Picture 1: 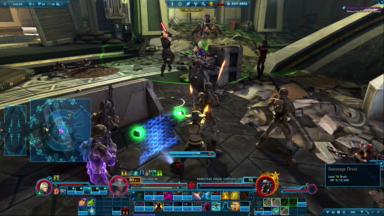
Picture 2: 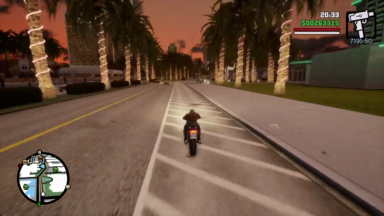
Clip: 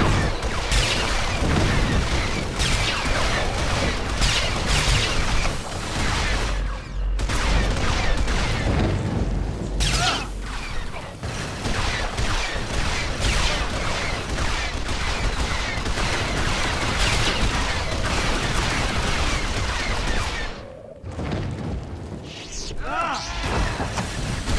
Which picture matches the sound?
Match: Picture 1